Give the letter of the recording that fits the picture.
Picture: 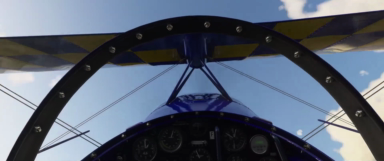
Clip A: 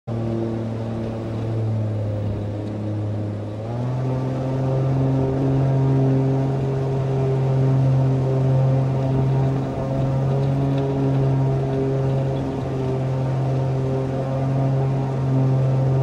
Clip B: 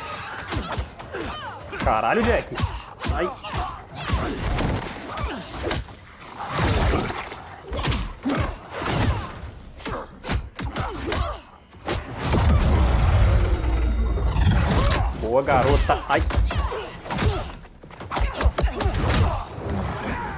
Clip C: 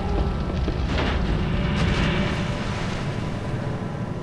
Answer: A